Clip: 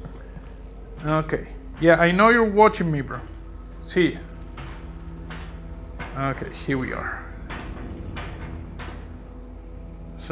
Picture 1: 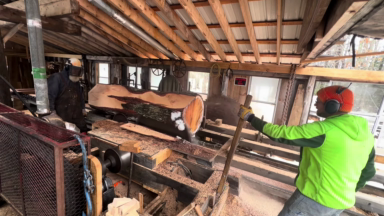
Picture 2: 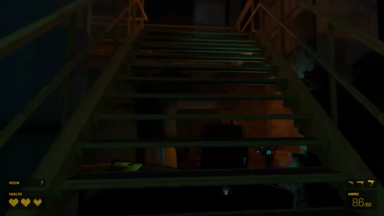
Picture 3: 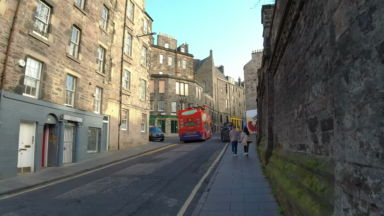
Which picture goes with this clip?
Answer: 2